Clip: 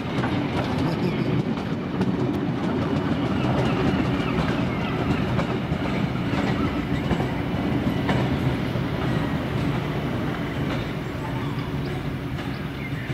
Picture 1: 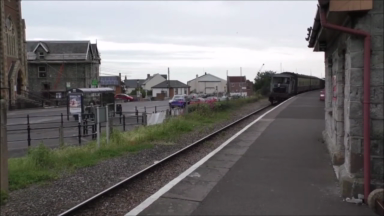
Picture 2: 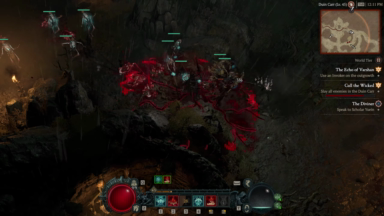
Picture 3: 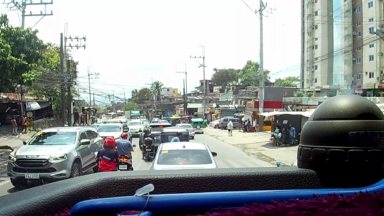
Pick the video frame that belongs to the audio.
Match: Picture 1